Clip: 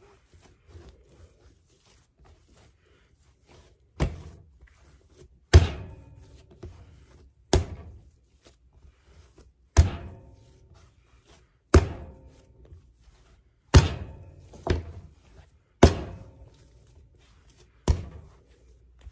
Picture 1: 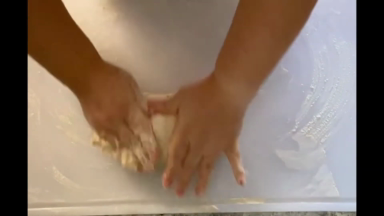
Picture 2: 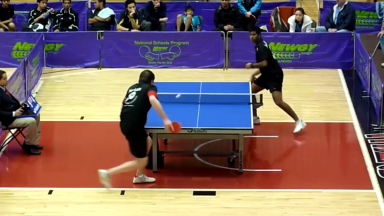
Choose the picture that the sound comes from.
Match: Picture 1